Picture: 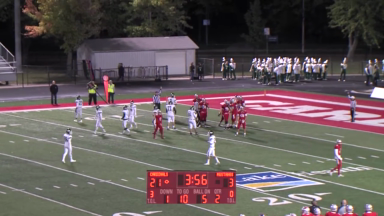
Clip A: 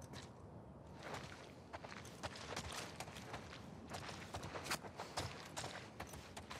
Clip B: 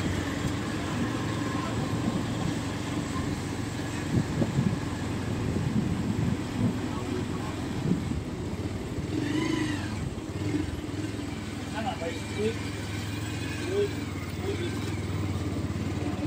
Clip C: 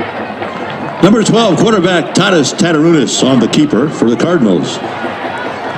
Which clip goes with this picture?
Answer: C